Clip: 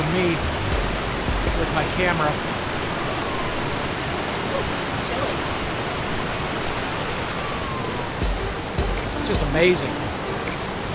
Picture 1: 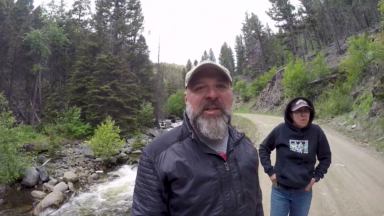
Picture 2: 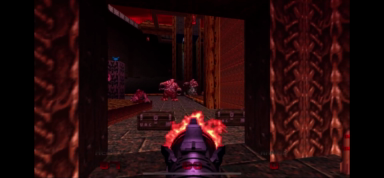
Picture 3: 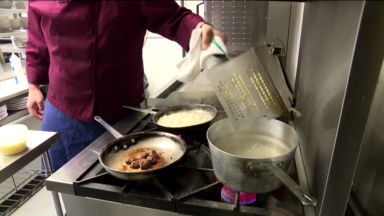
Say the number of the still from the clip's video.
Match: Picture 1